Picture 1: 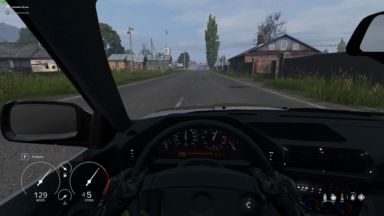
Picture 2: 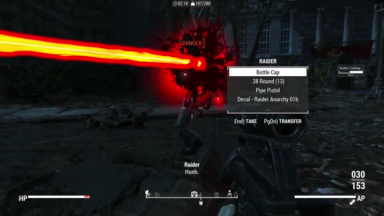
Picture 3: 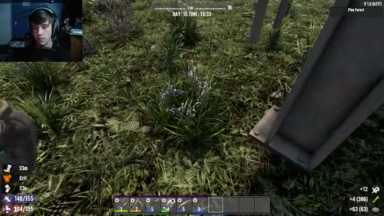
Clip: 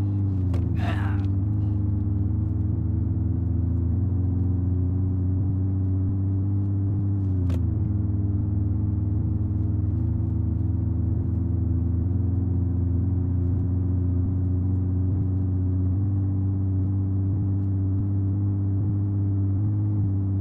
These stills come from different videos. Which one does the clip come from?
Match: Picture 1